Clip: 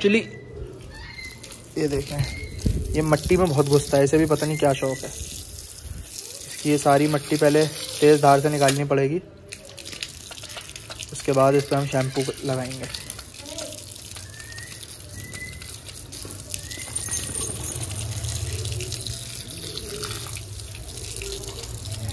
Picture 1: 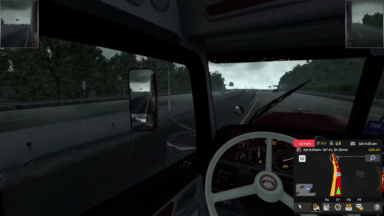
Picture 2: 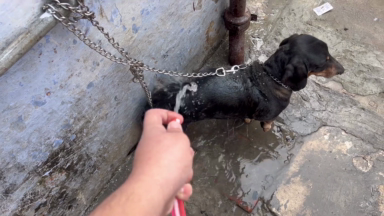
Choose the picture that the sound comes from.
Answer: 2